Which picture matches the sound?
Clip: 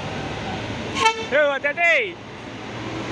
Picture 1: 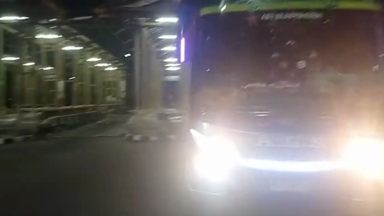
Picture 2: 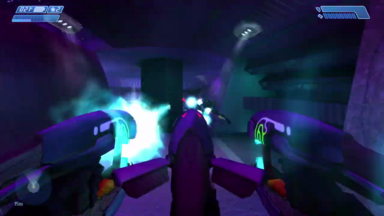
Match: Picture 1